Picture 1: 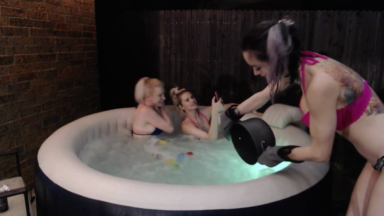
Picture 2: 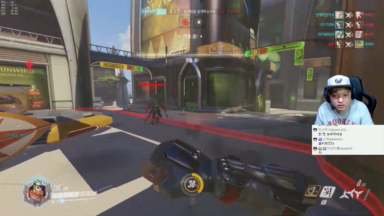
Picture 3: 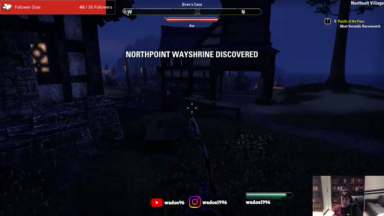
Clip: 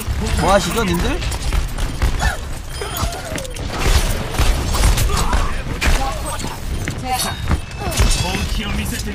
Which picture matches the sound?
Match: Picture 2